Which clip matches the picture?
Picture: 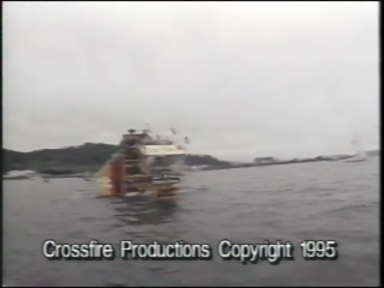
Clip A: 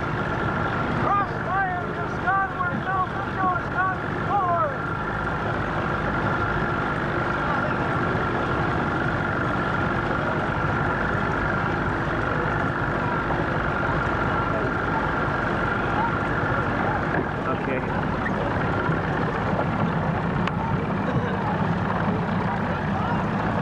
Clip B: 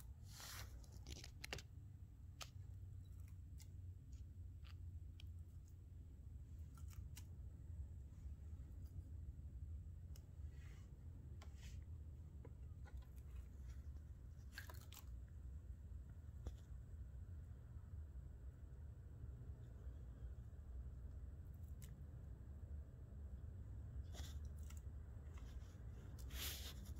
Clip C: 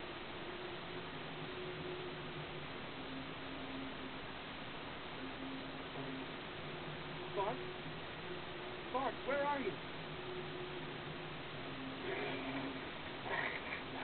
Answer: A